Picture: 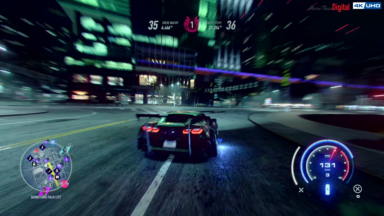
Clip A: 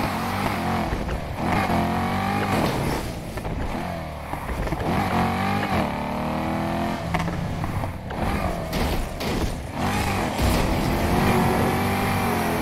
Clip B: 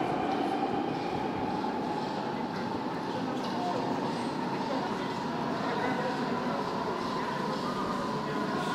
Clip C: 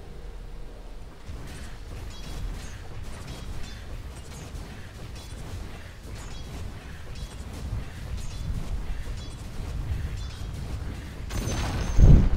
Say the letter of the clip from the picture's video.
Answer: A